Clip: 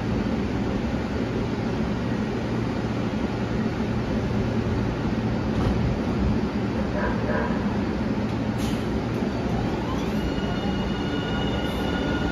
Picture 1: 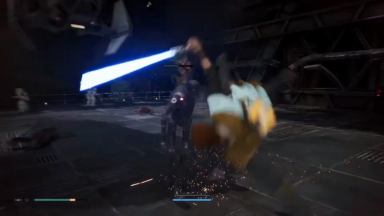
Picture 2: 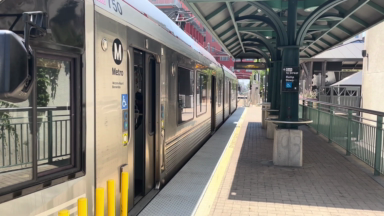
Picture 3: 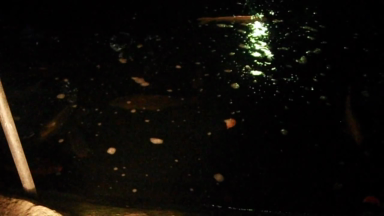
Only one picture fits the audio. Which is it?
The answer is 2